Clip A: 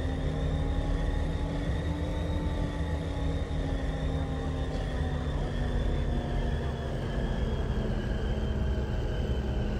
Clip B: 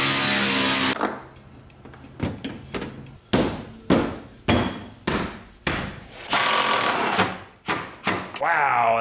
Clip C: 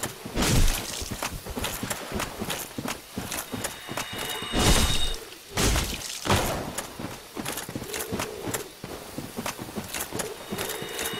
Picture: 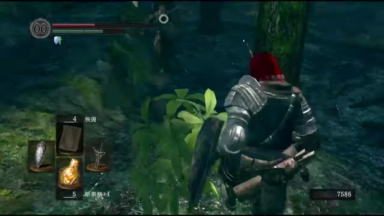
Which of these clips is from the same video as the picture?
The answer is C